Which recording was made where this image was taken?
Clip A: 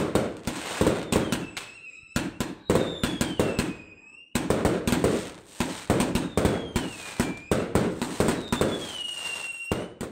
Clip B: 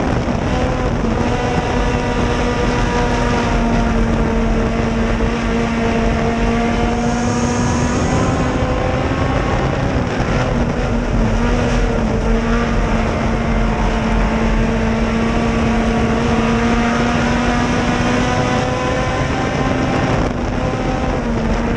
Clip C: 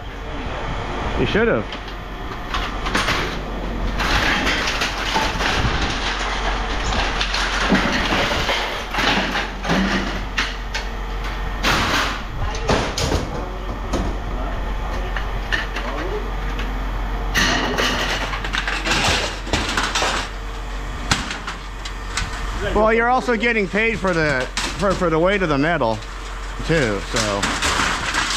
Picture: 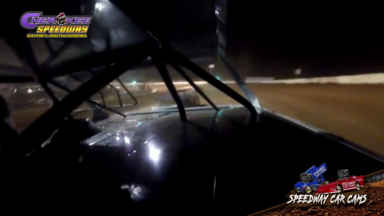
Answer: B